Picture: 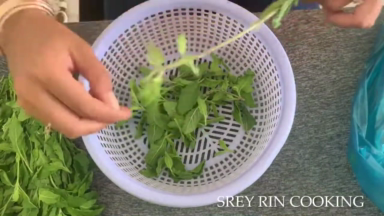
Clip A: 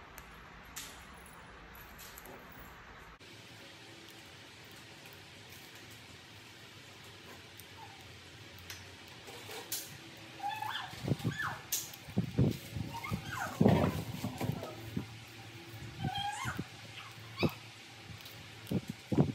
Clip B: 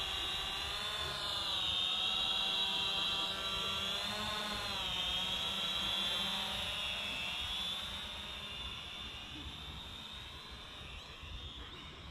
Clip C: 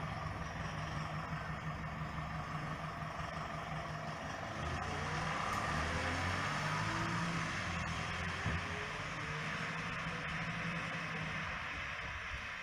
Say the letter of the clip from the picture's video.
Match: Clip A